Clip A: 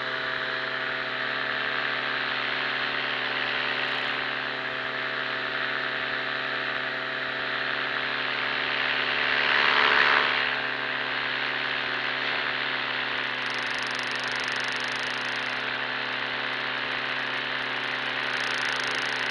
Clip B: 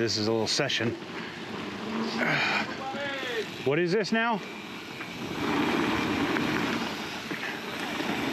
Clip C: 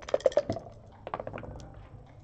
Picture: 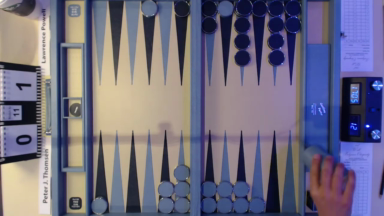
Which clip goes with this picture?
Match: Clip C